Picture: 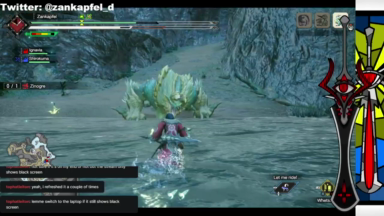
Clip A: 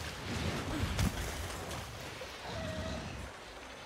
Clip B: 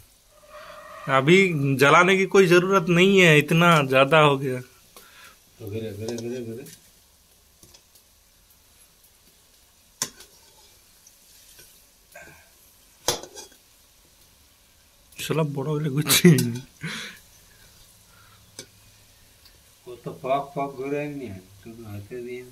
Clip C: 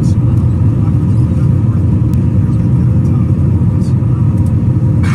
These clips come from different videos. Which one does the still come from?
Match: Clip A